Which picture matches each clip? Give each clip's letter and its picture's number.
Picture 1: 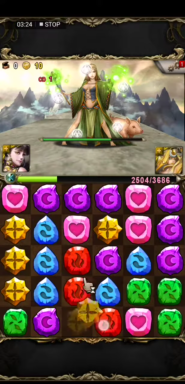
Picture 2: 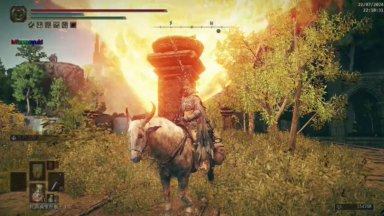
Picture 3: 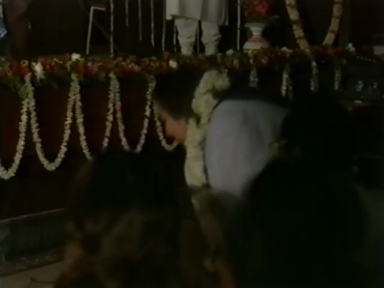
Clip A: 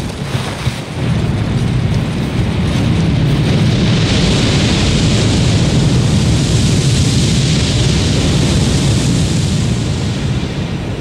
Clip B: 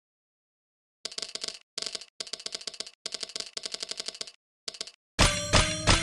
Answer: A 2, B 1